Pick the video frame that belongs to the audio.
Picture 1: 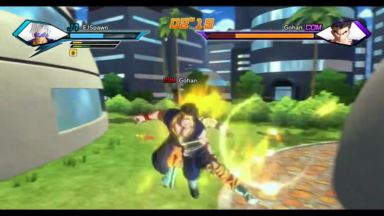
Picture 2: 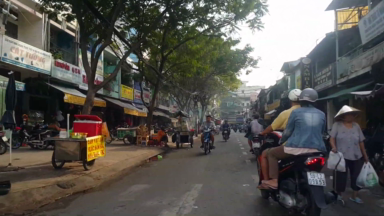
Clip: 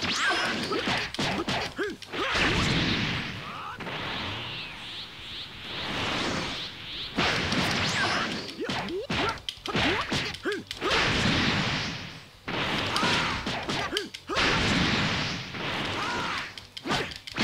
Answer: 1